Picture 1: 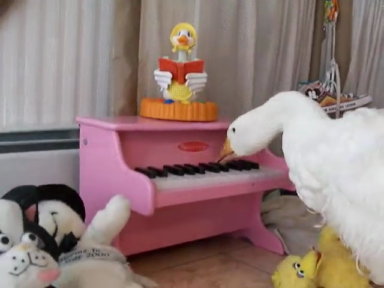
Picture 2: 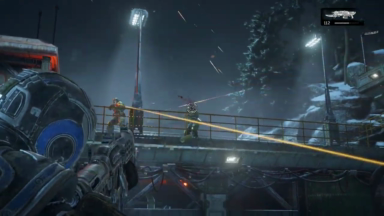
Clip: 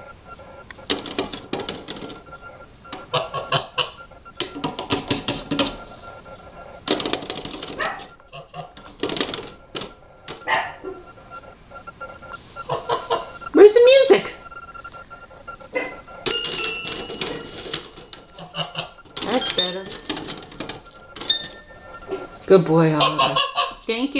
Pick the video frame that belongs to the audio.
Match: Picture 1